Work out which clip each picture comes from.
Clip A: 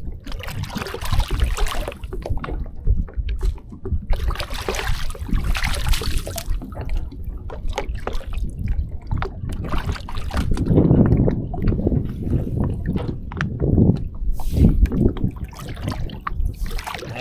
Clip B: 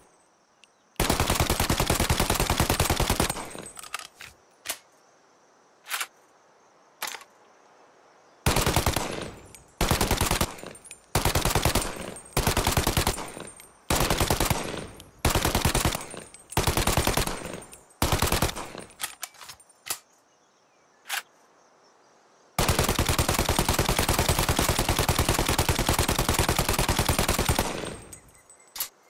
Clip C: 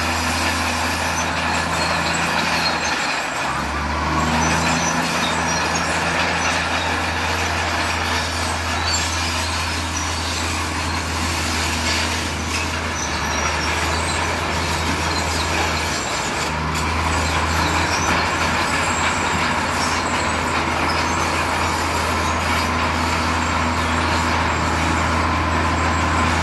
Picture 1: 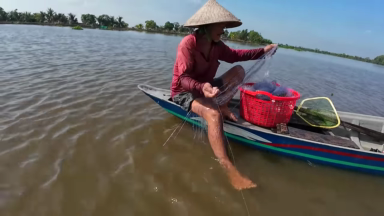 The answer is A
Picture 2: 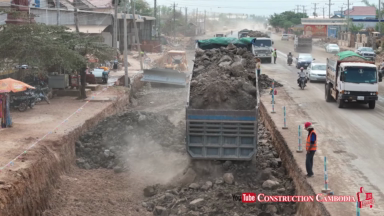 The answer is C